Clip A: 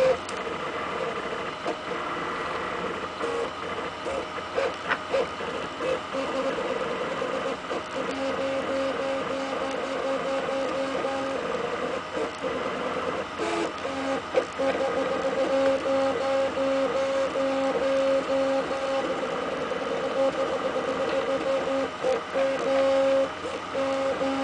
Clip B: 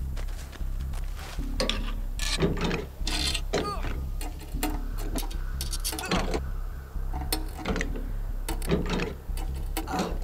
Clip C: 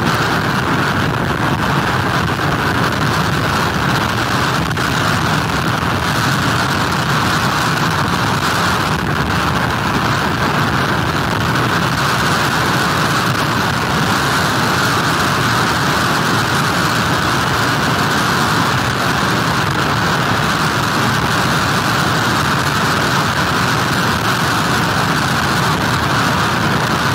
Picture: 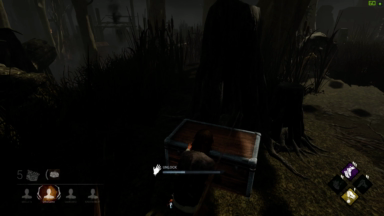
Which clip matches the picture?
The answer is B